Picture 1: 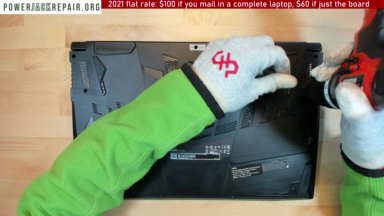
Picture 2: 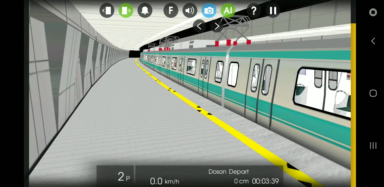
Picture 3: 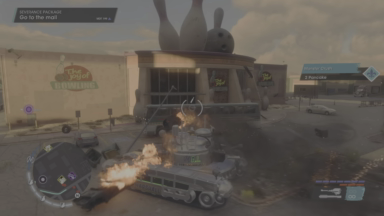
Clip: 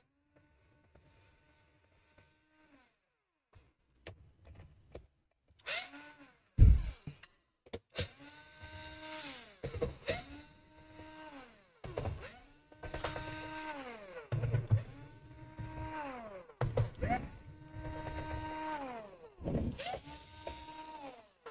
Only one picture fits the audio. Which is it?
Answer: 1